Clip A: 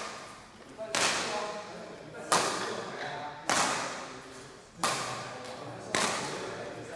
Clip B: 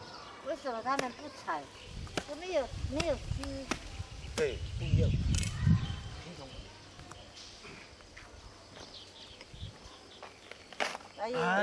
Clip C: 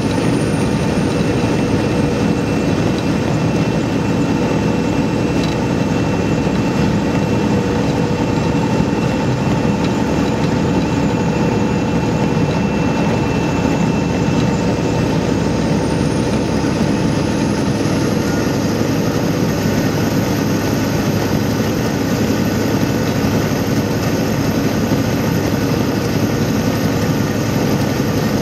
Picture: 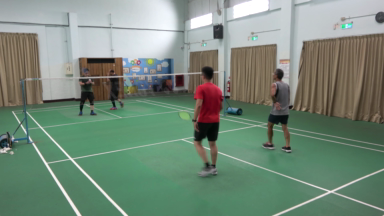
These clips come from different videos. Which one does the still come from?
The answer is A